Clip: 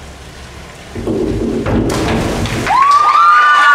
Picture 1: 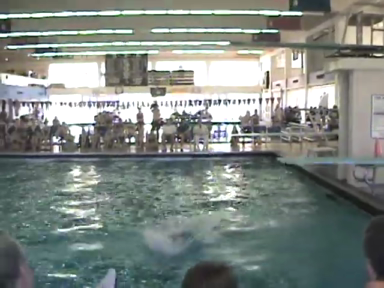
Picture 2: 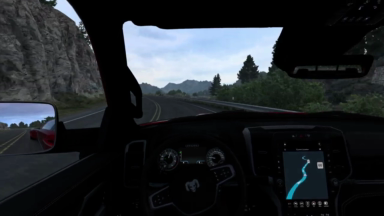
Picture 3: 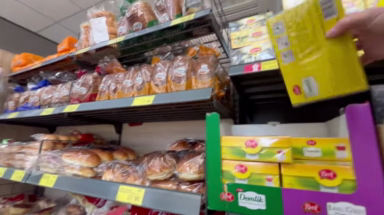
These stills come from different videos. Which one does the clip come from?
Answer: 1